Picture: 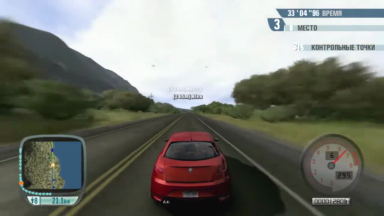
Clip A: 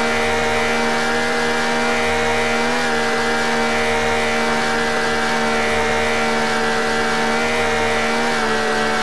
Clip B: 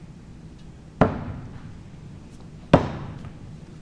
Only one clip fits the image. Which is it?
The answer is A